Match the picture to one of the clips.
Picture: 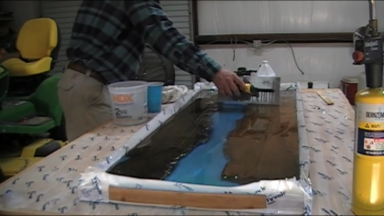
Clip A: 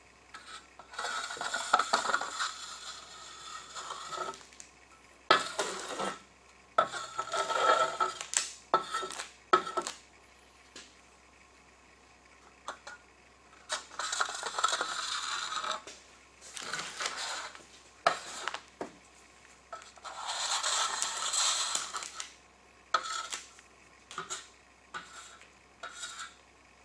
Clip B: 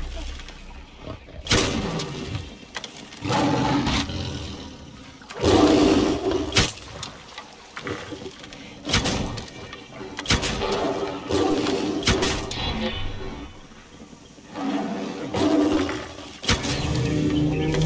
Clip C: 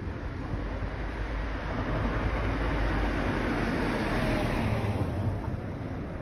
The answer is A